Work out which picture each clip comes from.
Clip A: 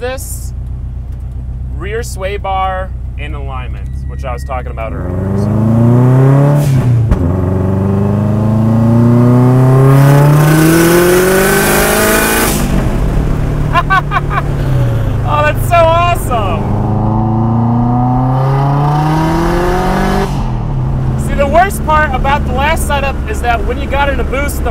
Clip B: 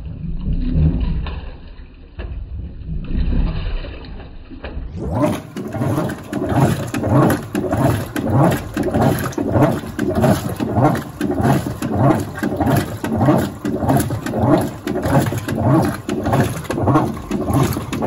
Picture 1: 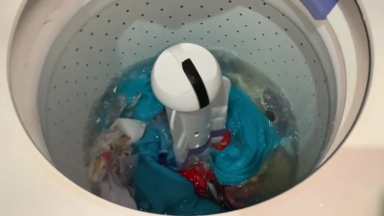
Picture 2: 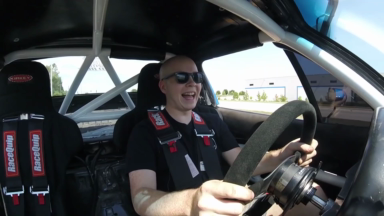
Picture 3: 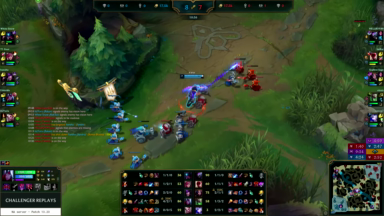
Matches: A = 2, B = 1